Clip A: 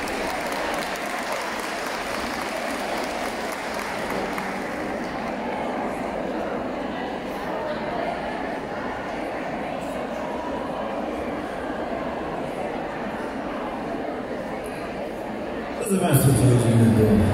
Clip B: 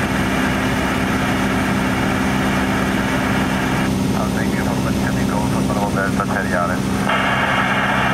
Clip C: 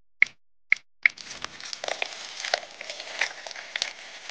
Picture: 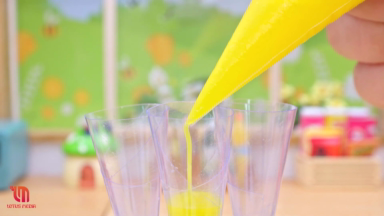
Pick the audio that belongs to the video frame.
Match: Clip C